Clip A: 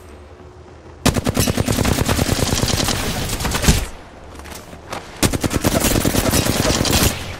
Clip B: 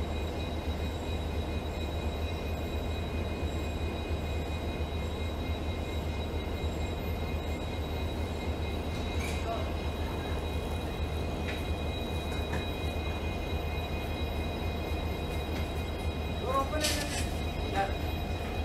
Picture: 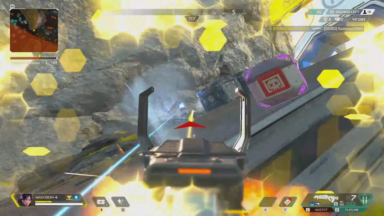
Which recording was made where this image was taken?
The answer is A